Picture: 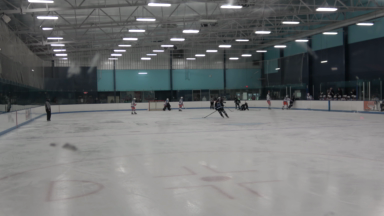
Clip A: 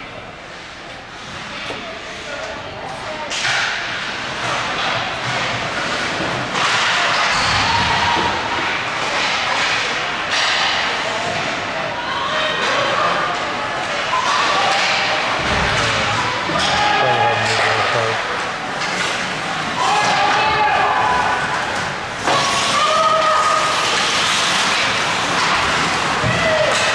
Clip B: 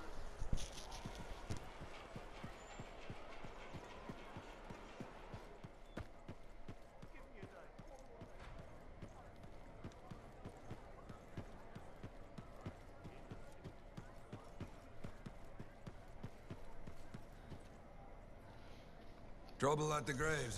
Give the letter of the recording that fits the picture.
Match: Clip A